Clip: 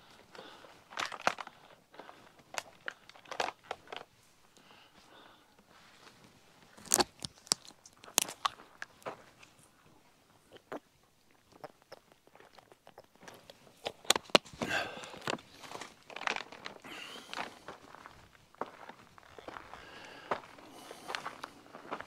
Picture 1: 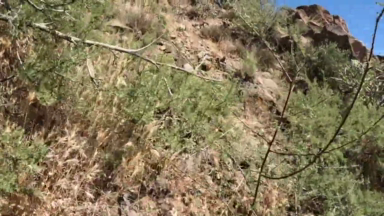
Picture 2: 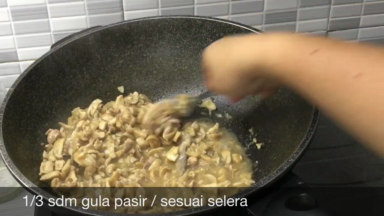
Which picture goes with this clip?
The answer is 1